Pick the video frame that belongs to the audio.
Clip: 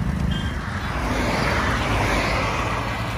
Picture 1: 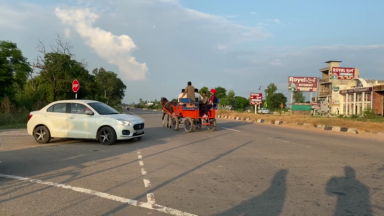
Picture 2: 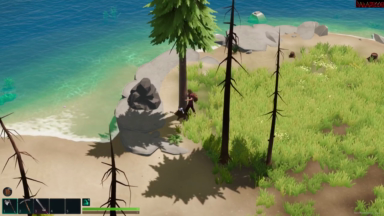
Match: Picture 1